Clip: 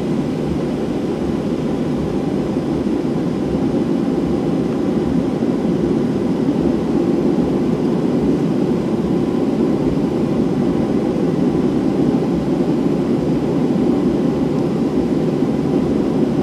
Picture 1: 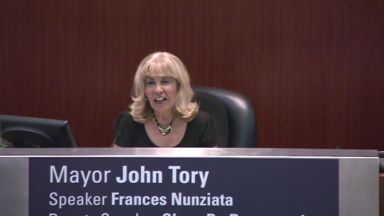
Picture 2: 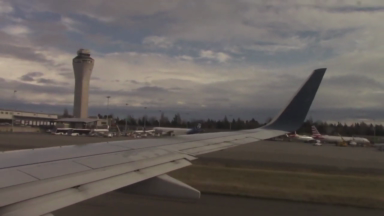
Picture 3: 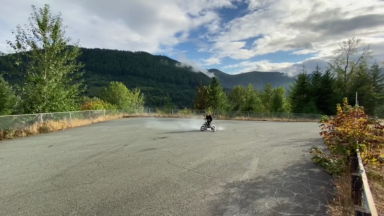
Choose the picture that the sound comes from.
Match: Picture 2